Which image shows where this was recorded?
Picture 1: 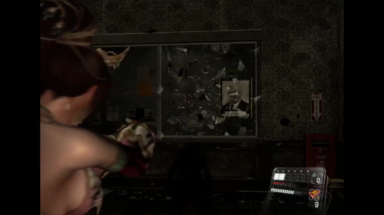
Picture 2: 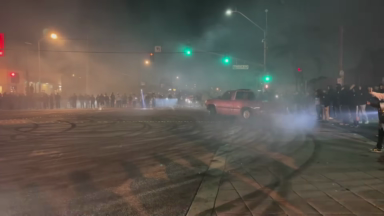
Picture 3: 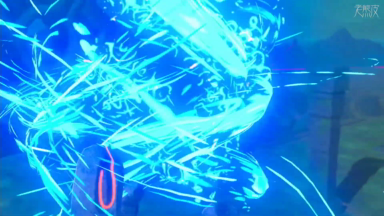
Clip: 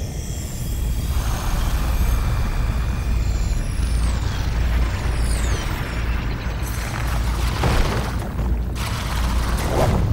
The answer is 3